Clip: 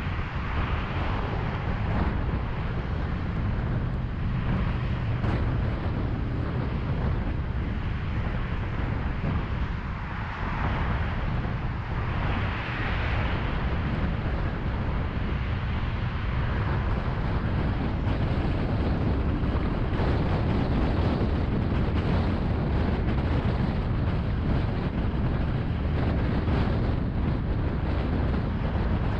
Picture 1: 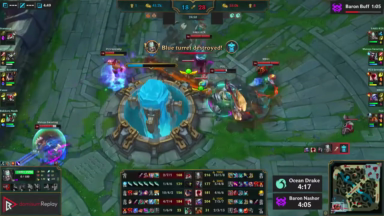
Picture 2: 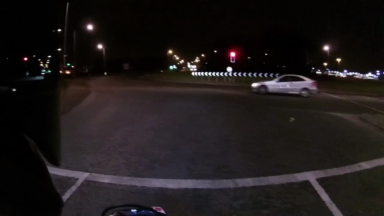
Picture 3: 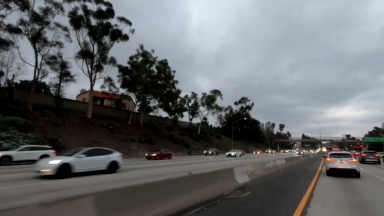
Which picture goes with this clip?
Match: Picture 3